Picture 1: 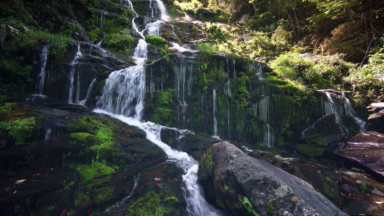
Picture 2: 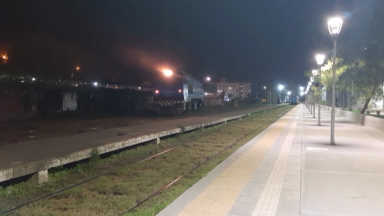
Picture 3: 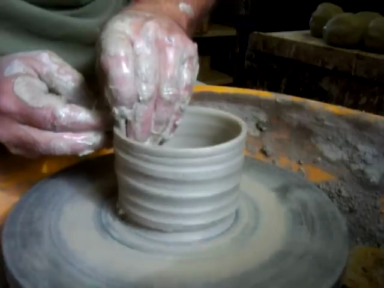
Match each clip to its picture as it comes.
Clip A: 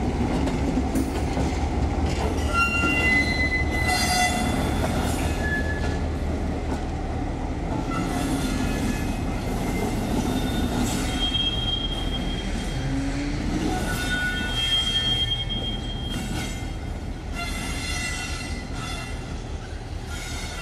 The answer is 2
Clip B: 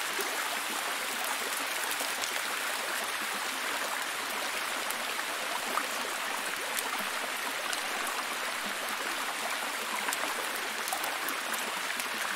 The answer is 1